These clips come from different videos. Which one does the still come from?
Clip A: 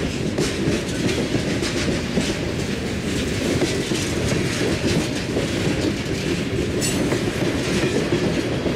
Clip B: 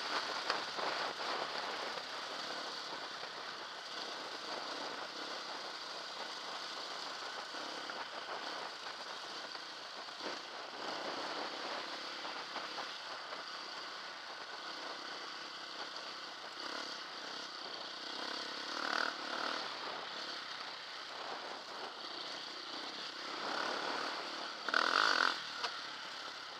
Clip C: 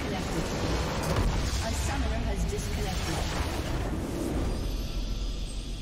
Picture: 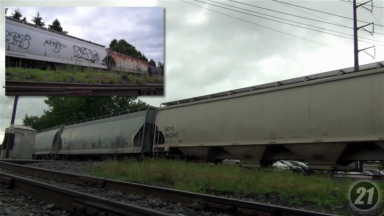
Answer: A